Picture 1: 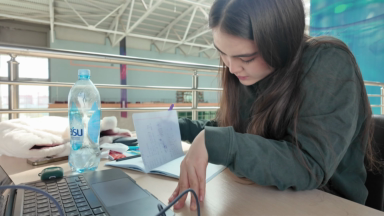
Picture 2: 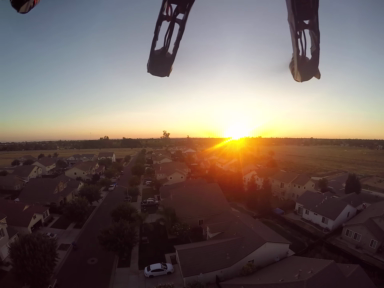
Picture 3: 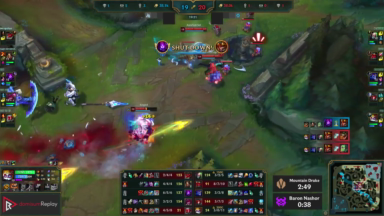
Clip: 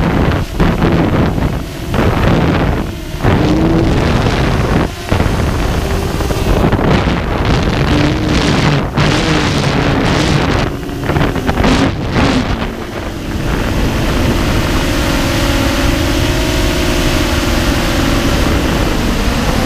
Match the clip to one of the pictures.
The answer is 2